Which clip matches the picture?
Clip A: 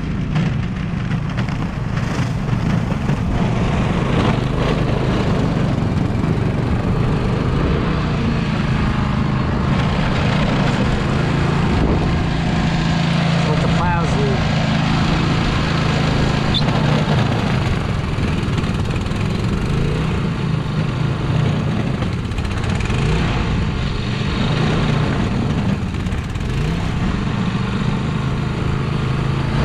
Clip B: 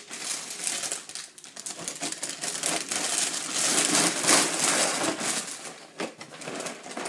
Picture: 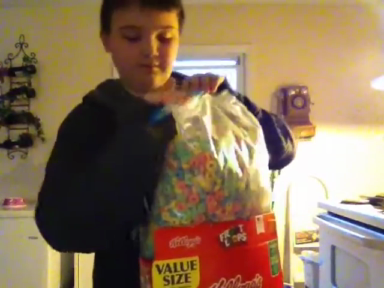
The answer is B